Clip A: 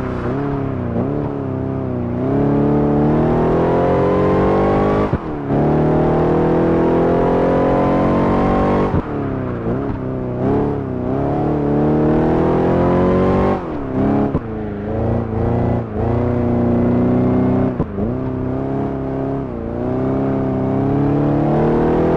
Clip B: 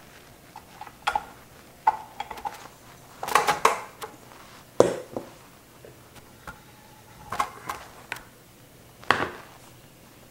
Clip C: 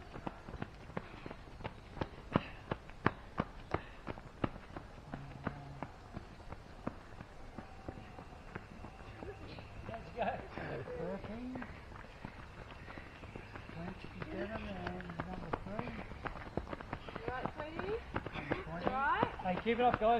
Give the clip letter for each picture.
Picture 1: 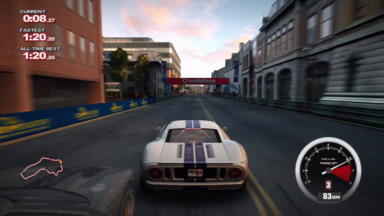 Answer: A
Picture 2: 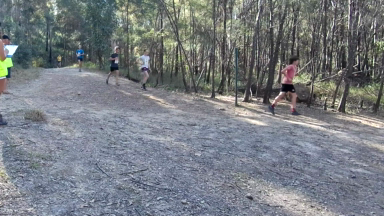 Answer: C